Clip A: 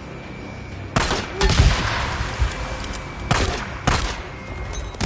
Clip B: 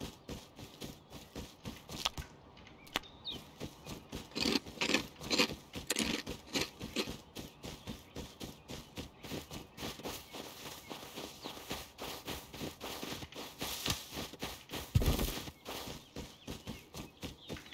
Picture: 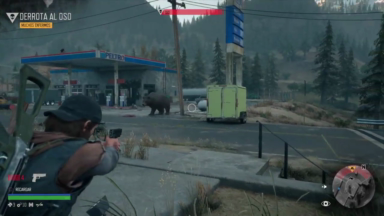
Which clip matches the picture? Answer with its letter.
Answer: A